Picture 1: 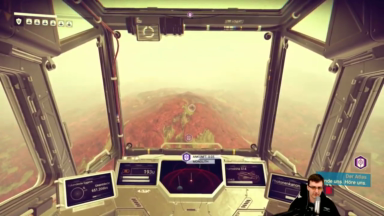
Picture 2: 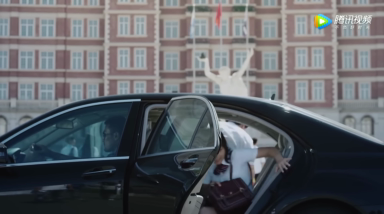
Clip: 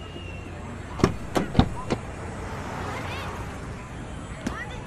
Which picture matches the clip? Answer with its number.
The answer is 2